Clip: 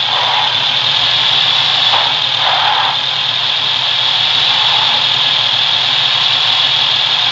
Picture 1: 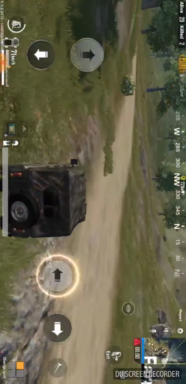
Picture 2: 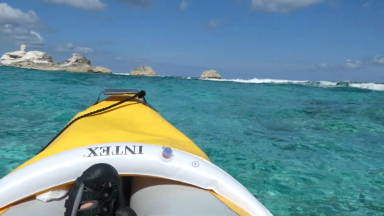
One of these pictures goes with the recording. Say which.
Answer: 1